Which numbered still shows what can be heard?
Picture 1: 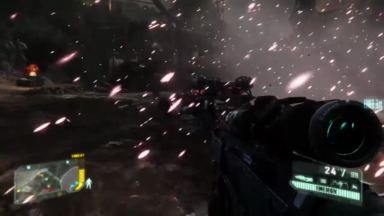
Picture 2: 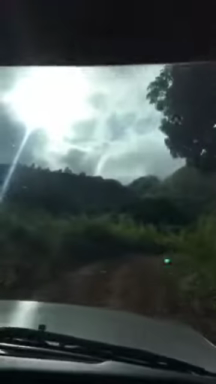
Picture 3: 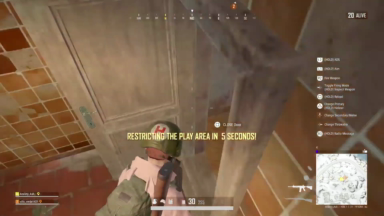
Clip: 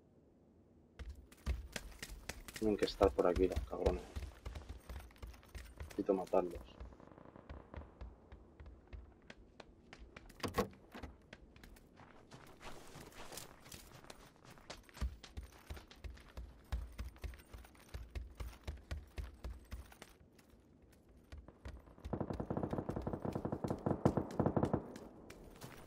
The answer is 3